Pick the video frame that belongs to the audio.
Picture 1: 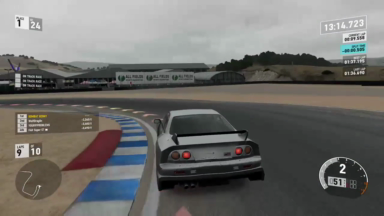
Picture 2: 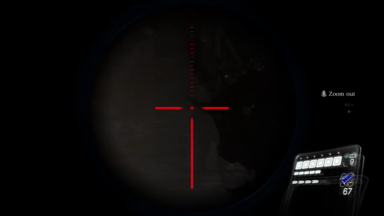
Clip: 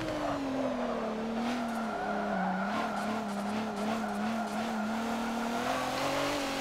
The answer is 1